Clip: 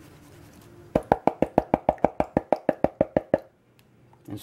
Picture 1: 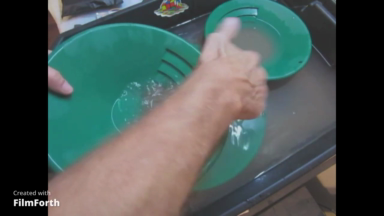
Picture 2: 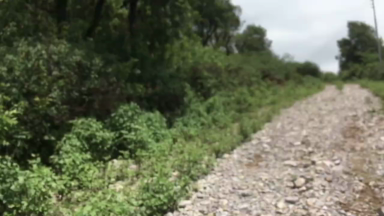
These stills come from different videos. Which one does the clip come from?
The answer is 1